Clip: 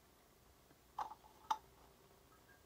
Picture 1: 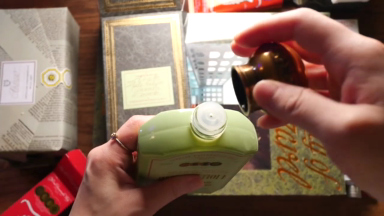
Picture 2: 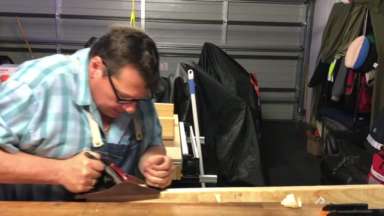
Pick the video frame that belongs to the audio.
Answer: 1